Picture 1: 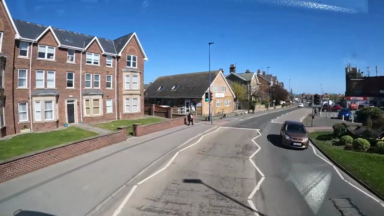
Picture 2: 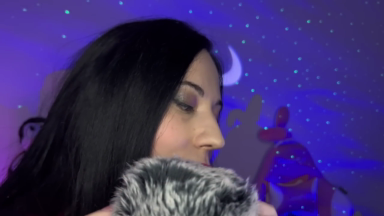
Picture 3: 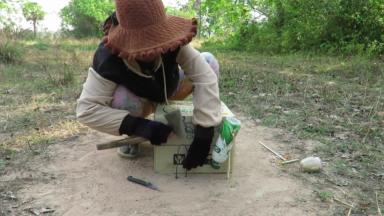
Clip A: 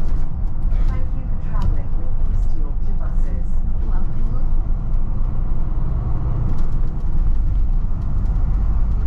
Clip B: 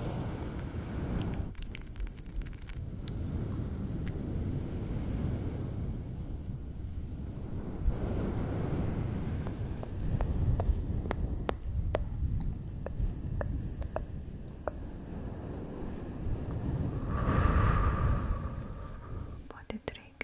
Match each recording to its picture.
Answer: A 1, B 2